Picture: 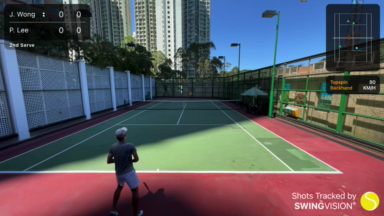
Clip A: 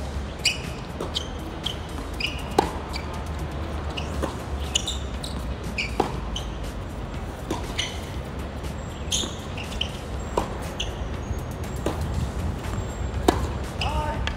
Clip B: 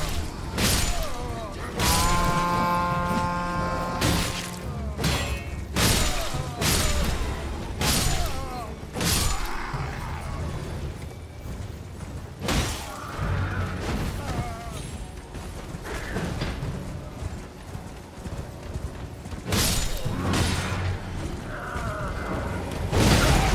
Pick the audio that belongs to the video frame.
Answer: A